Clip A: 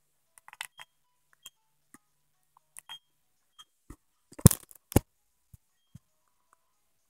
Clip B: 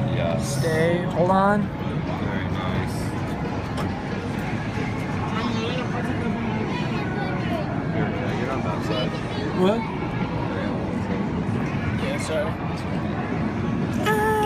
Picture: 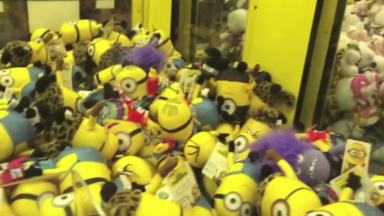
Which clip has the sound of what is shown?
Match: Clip B